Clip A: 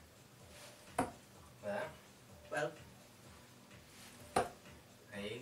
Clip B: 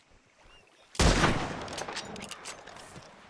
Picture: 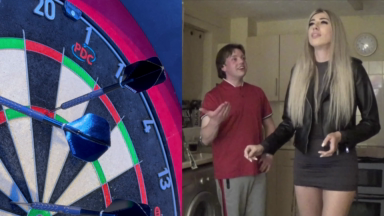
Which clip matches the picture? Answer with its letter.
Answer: A